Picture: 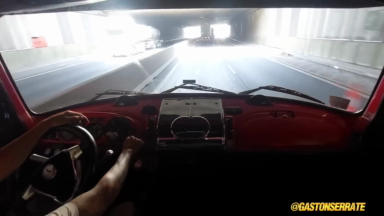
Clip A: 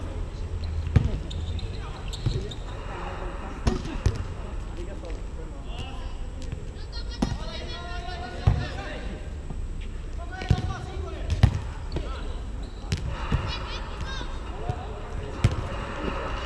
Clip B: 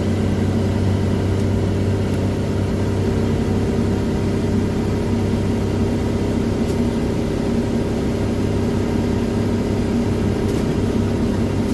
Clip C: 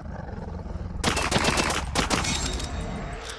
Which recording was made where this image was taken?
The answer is B